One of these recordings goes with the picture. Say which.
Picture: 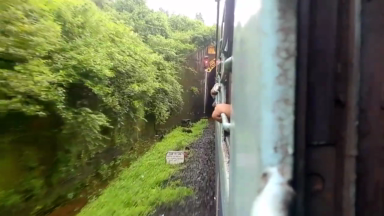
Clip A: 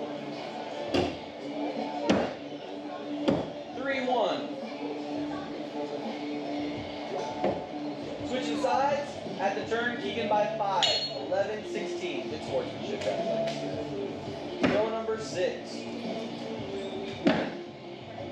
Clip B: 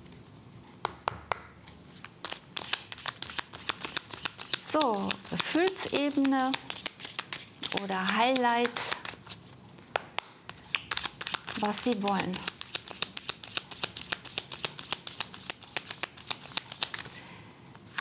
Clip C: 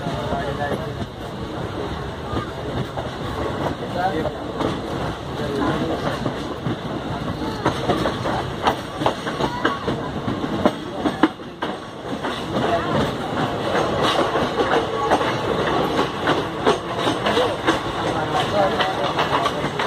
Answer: C